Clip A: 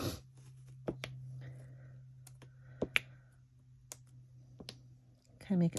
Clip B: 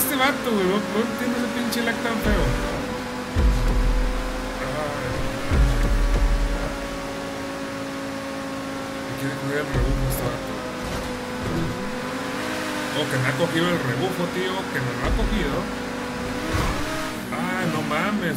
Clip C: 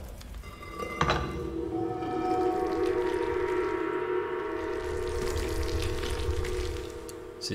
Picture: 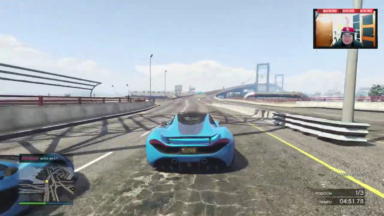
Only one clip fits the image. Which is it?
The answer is B